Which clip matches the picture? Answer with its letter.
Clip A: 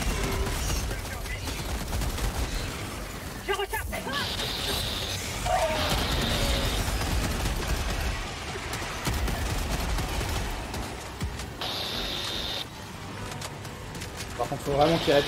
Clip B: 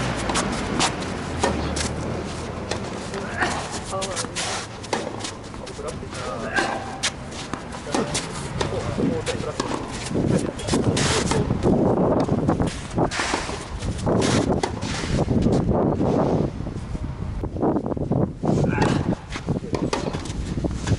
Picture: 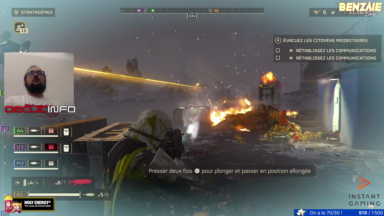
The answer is A